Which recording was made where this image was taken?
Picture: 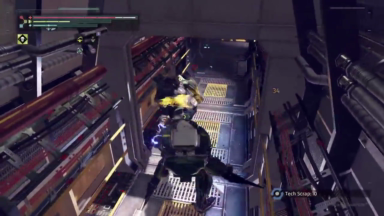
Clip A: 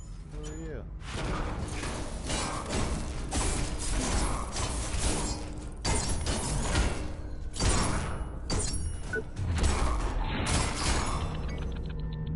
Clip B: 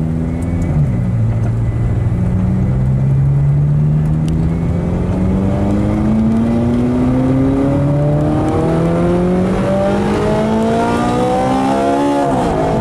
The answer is A